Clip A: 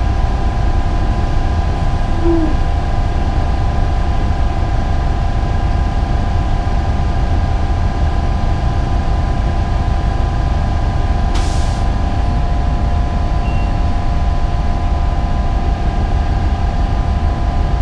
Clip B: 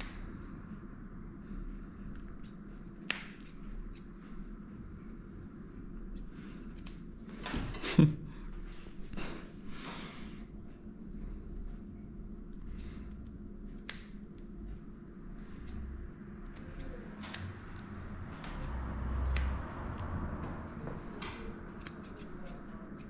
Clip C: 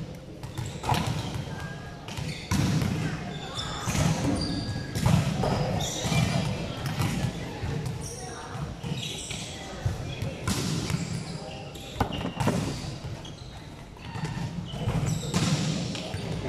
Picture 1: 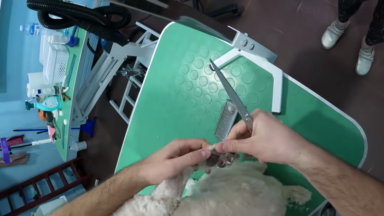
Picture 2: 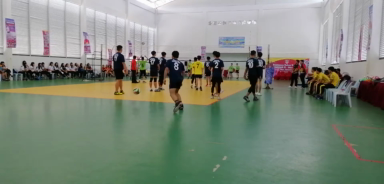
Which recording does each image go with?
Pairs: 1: B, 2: C